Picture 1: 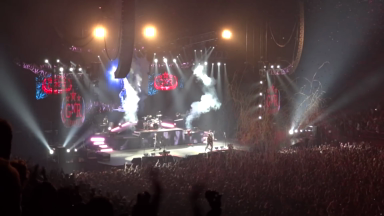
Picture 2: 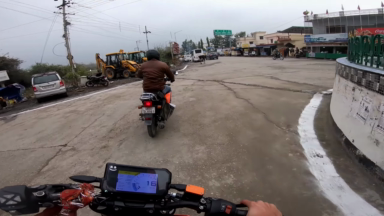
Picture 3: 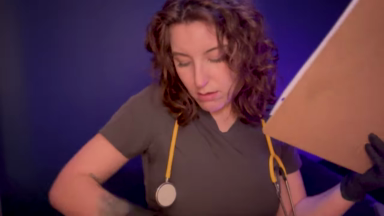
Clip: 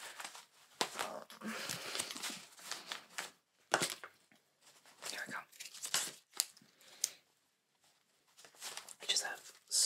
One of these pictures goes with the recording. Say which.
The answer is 3